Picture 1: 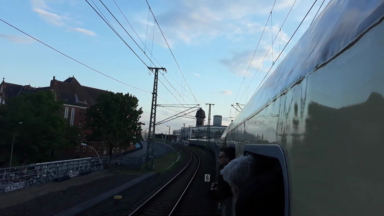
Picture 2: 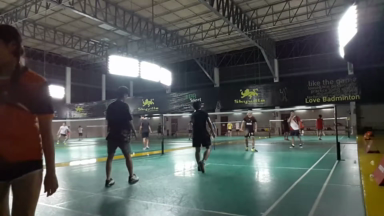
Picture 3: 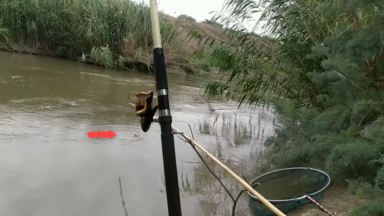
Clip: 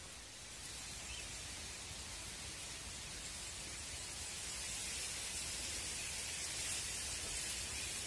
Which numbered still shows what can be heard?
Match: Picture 3